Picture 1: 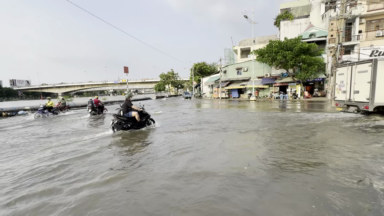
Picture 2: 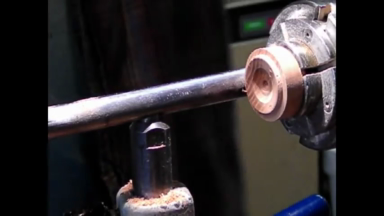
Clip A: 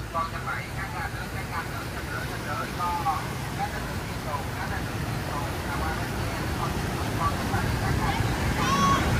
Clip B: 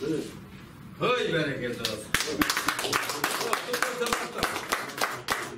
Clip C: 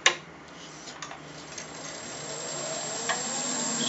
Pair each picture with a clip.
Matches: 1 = A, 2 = C